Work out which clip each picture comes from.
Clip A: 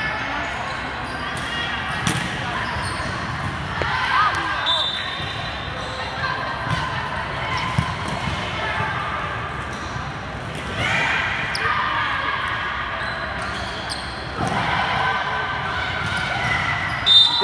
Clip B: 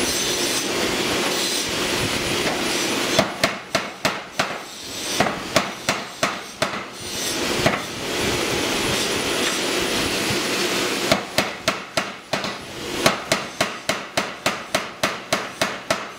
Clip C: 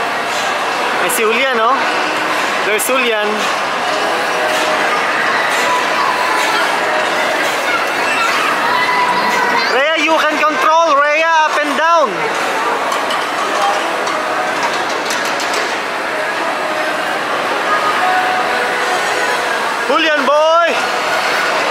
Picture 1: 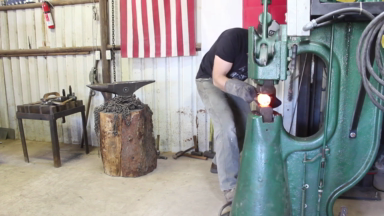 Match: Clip B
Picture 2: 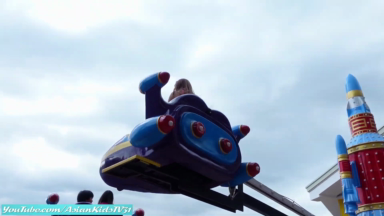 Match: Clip C